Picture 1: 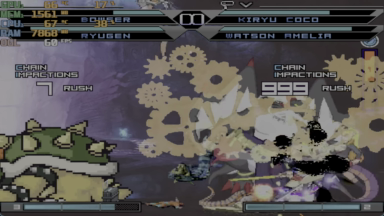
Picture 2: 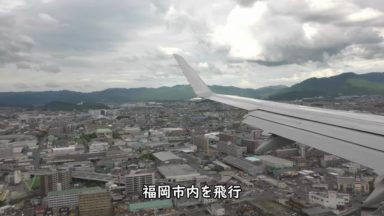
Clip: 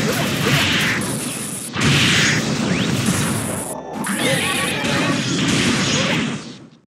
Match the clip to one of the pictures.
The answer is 1